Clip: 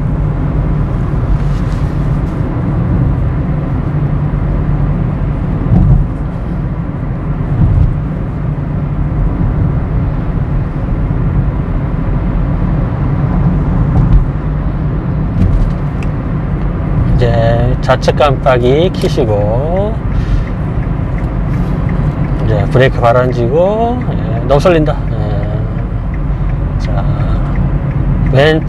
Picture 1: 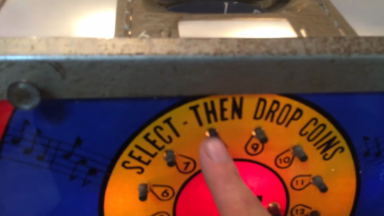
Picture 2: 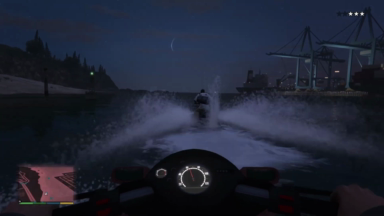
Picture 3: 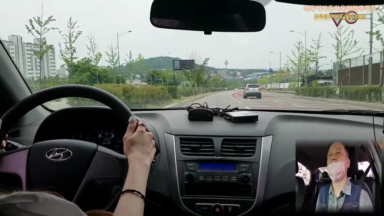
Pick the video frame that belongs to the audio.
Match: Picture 3